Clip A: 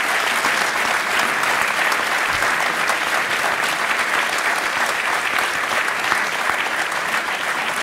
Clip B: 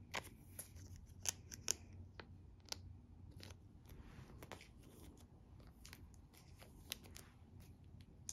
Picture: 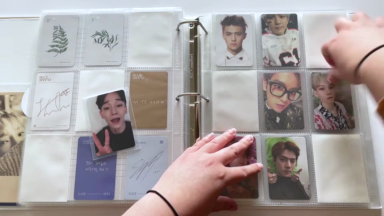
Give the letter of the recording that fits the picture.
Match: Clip B